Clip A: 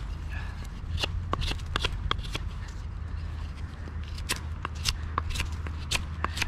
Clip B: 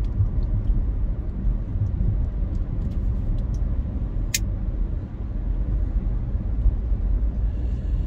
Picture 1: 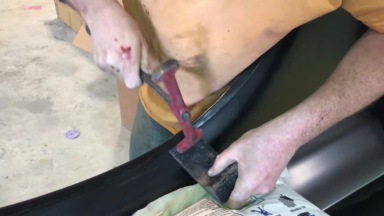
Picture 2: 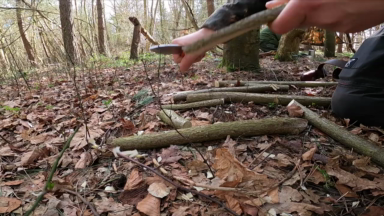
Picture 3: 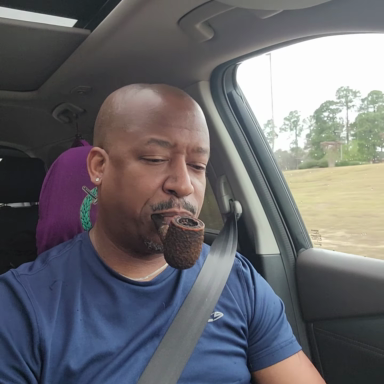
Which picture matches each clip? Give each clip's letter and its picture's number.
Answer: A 2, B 3